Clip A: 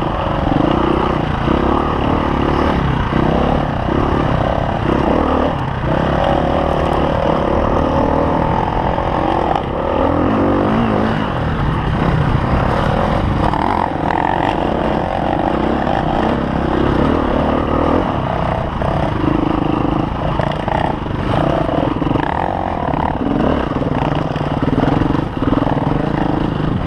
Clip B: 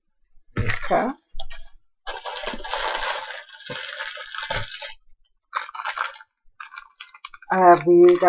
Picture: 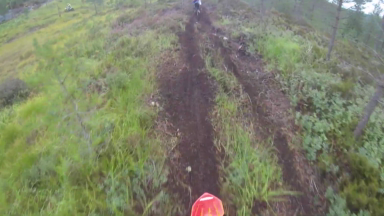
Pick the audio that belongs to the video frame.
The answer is A